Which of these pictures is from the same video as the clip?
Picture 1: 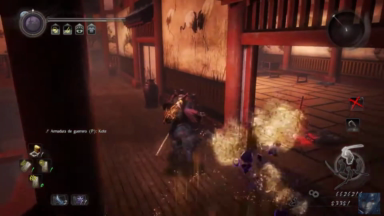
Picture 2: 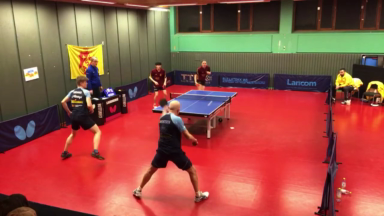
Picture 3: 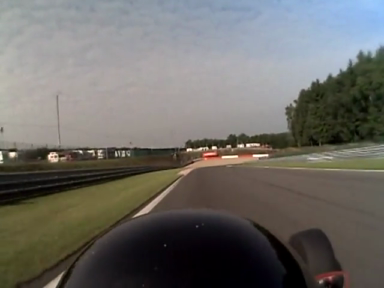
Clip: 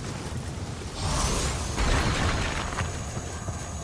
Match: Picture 1